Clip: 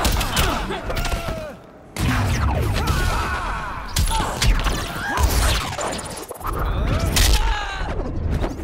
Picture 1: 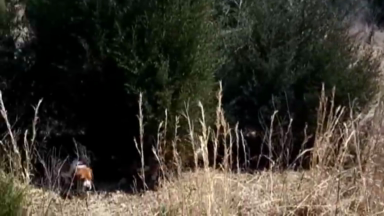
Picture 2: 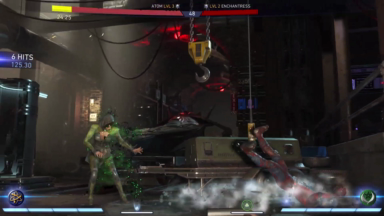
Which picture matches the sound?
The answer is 2